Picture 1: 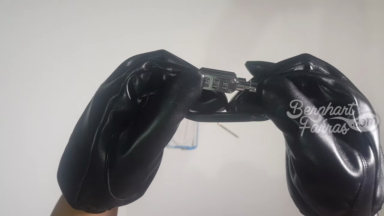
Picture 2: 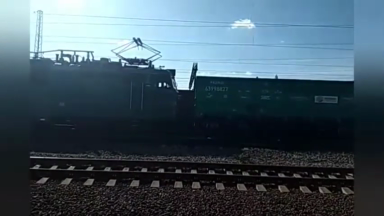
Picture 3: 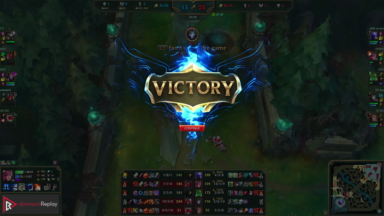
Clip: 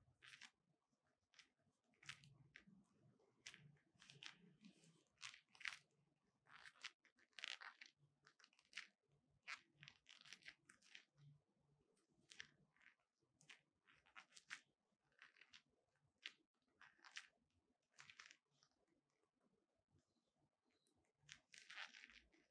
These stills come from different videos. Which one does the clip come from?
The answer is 1